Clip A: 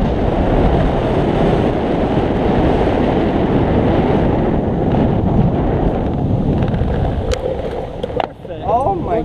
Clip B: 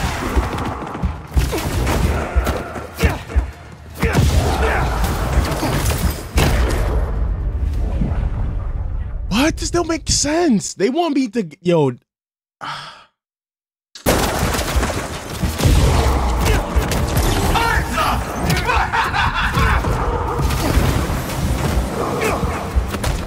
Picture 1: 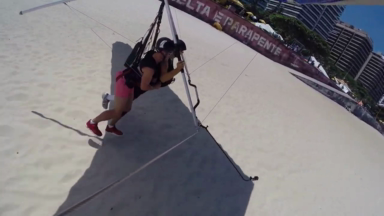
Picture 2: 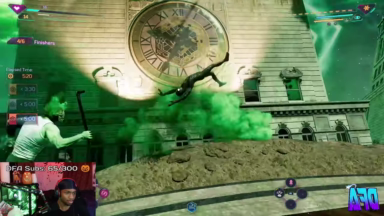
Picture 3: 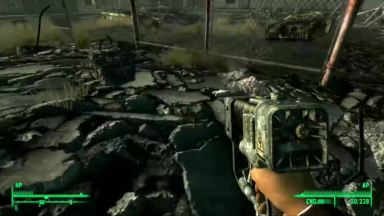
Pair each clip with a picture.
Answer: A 1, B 2